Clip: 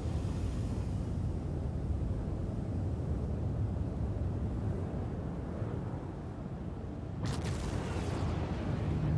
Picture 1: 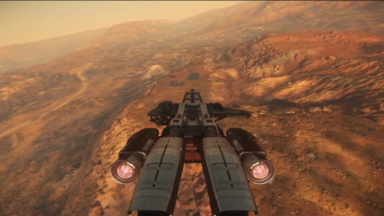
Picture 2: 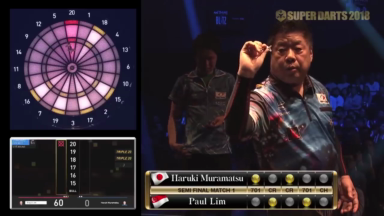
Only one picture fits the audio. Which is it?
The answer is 1